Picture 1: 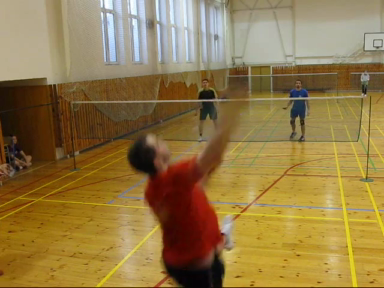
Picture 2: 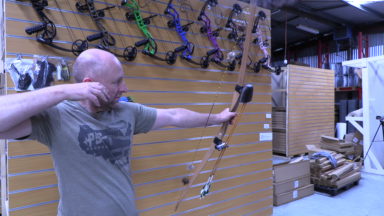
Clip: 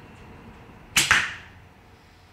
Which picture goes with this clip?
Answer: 2